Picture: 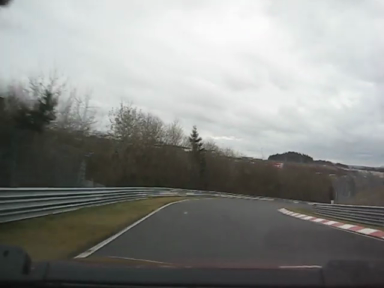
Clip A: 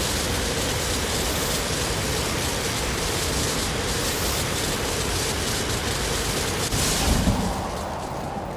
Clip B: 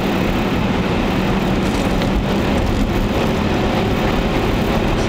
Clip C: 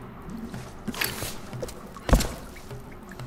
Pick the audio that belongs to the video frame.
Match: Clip B